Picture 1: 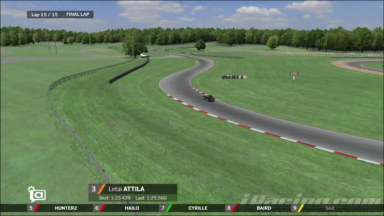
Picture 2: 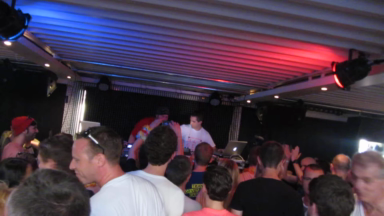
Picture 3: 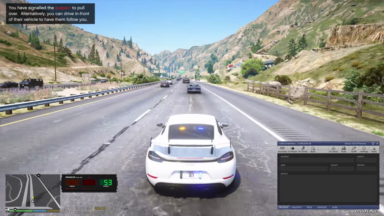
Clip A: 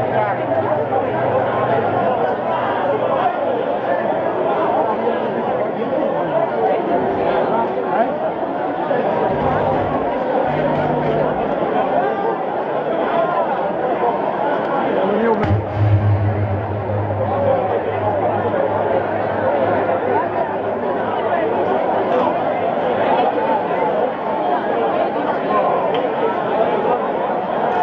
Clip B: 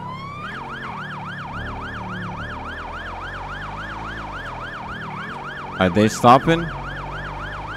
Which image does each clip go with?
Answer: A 2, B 3